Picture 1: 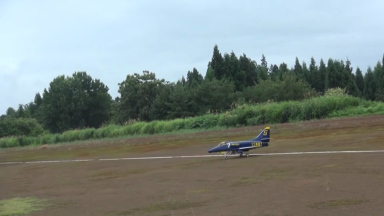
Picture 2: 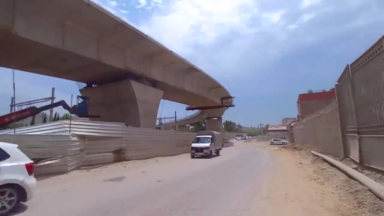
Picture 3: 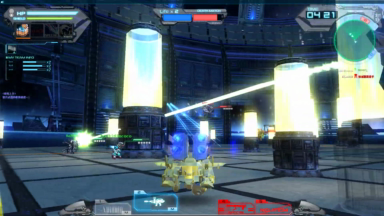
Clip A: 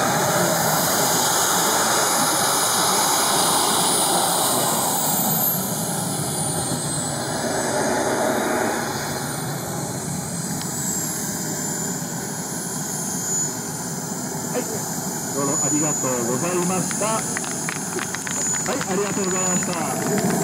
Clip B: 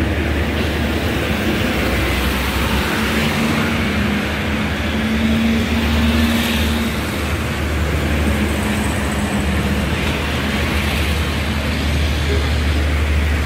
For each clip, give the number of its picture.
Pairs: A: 1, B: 2